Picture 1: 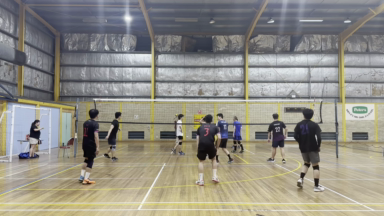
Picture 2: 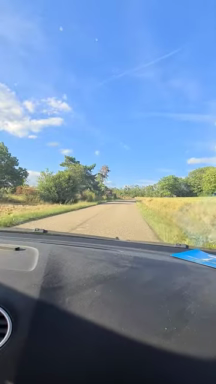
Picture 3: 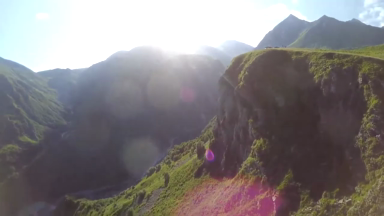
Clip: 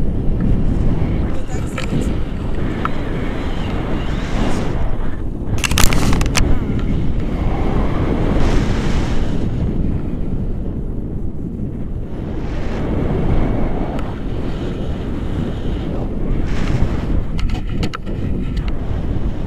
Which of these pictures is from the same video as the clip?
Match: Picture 3